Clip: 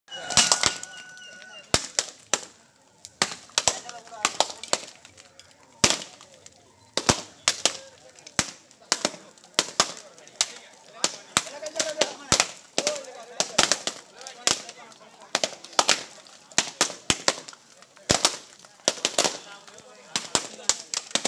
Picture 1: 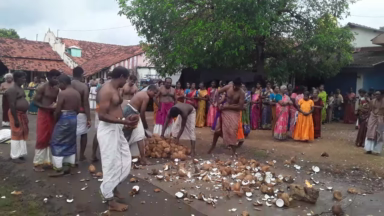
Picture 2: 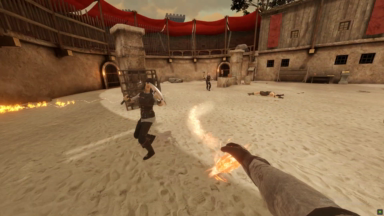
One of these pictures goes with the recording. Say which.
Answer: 1